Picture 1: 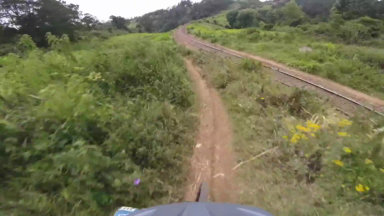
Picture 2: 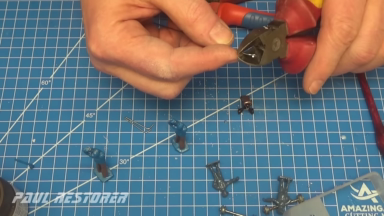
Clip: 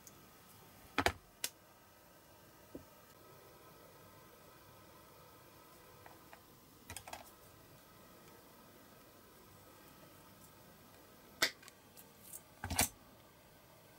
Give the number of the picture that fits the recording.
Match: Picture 2